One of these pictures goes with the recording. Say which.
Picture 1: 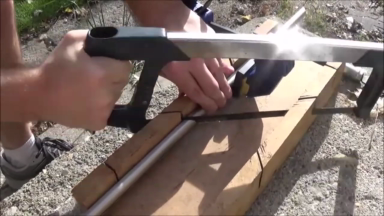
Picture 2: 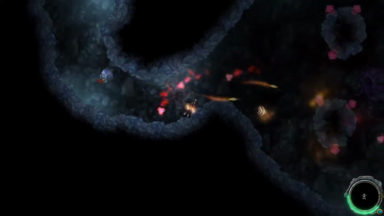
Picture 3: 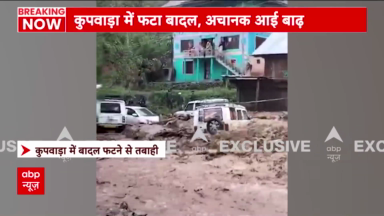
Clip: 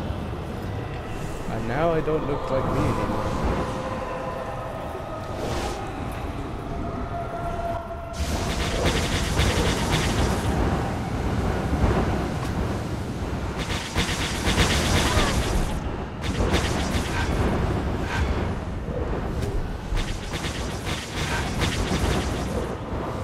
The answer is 2